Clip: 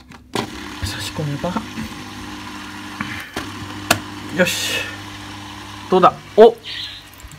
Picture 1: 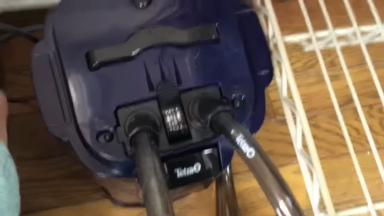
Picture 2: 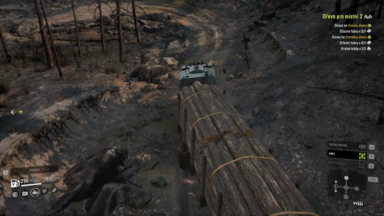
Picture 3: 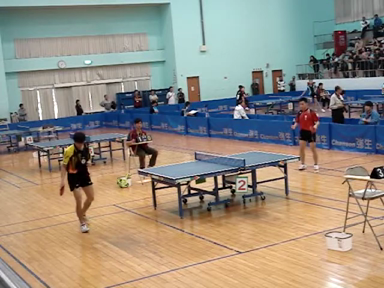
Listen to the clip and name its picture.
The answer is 1